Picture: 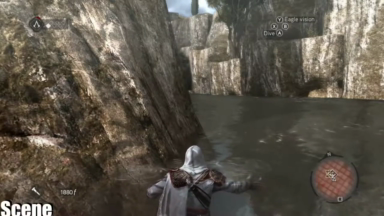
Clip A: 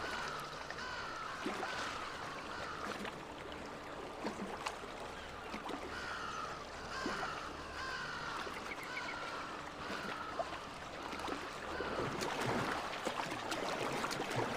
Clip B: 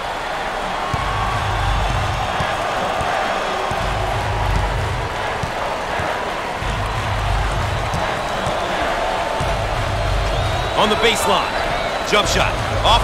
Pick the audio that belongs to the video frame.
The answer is A